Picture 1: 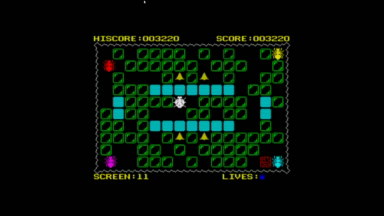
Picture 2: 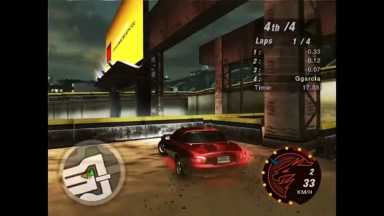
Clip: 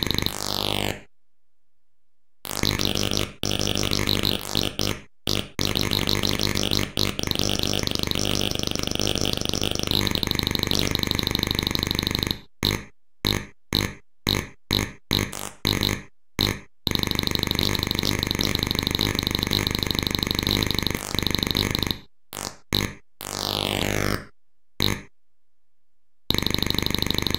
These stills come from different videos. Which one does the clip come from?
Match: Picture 1